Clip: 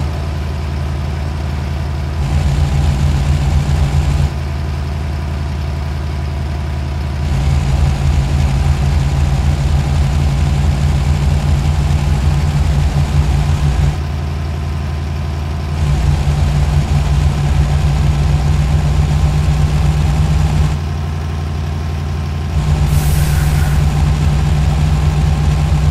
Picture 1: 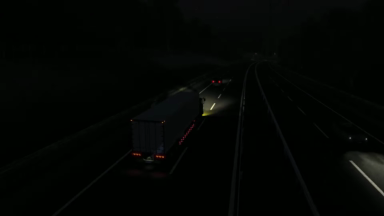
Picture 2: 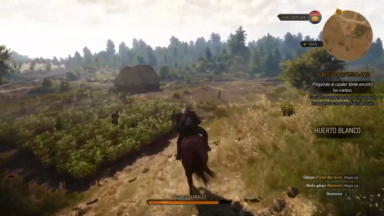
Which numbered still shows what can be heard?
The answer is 1